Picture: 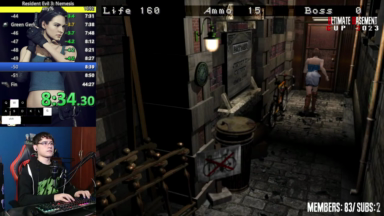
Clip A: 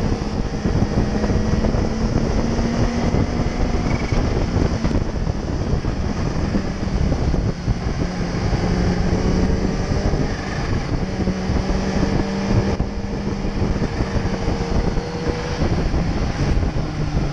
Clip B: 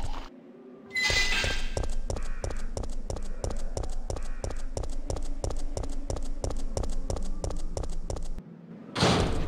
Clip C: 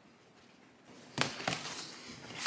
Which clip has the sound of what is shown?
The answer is B